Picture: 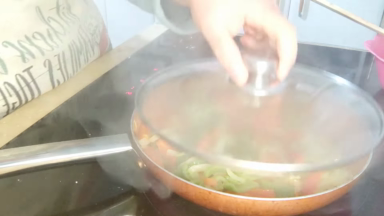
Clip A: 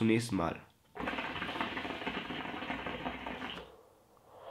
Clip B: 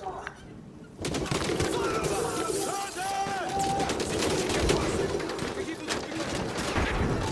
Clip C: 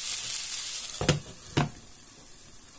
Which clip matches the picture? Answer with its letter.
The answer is C